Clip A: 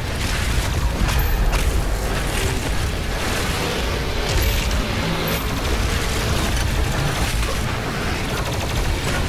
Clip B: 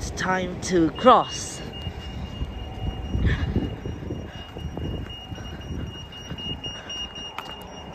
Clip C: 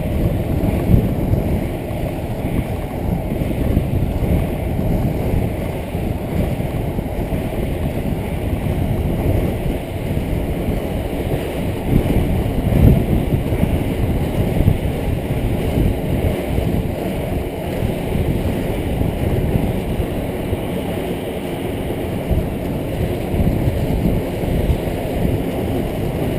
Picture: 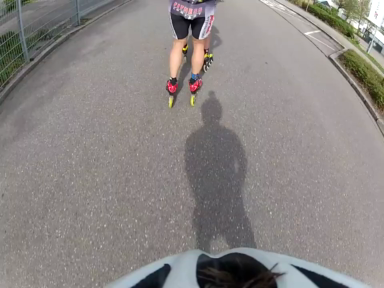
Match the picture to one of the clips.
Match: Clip C